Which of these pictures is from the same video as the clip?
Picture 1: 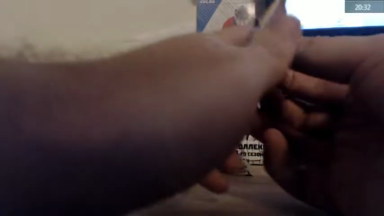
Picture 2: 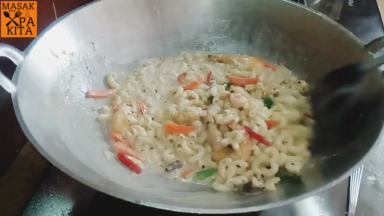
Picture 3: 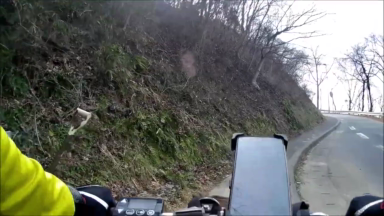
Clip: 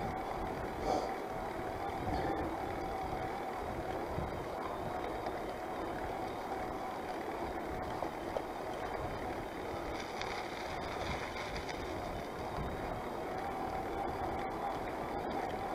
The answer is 3